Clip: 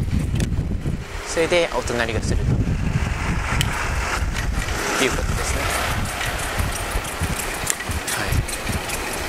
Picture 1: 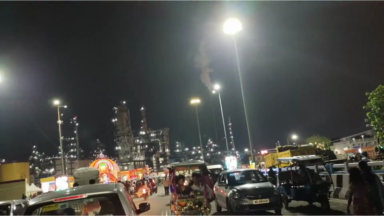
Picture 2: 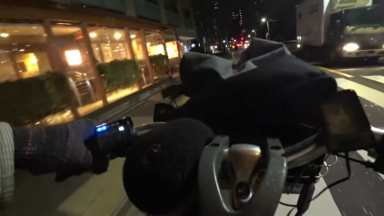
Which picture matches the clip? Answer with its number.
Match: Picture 2